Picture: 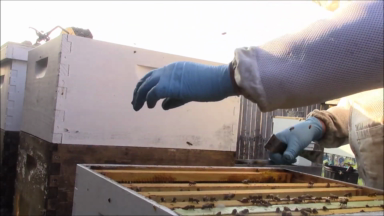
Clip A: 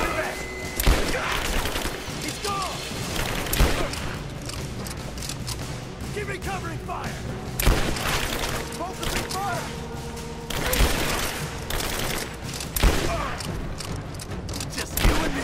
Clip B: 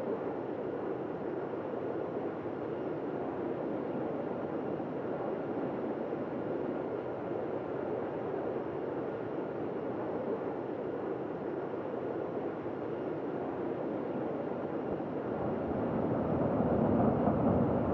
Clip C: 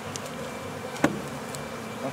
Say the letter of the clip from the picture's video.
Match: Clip C